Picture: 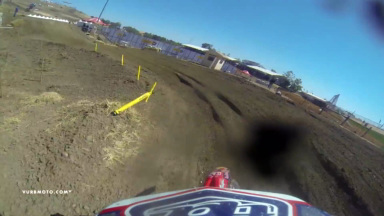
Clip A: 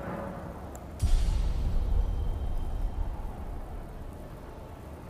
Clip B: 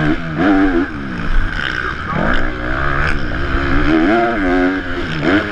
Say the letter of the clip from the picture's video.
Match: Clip B